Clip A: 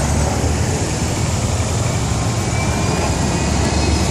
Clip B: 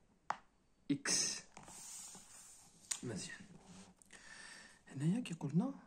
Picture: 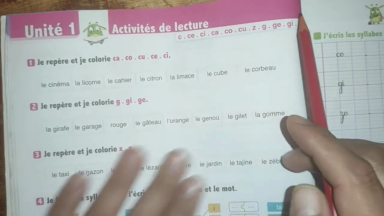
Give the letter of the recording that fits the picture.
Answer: B